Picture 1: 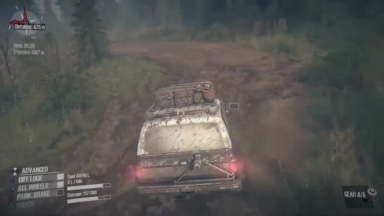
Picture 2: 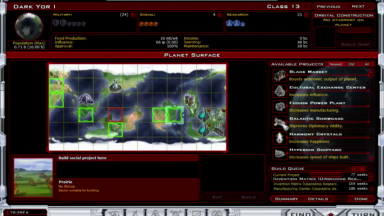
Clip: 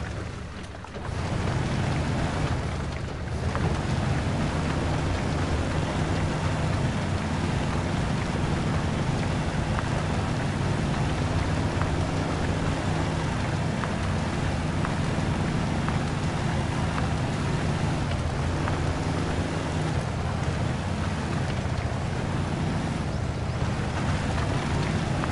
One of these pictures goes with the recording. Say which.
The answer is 1